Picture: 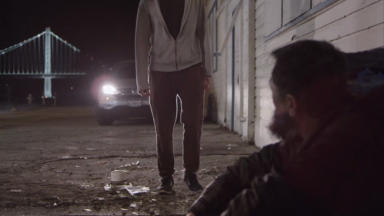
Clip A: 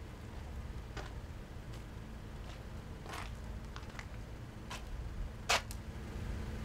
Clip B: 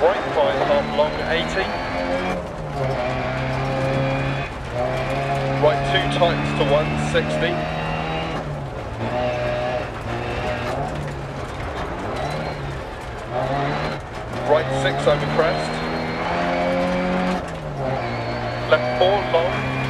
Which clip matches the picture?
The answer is A